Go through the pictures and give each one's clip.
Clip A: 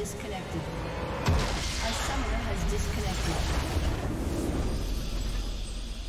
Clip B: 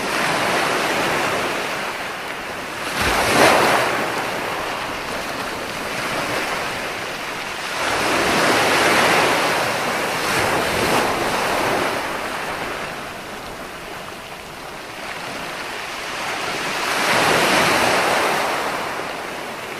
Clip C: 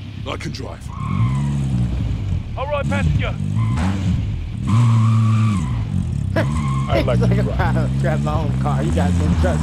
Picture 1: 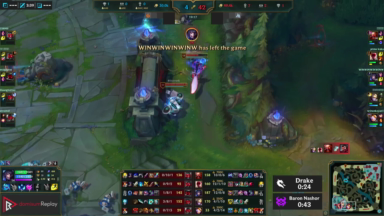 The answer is A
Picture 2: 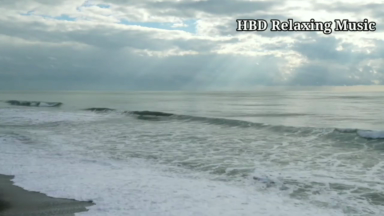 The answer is B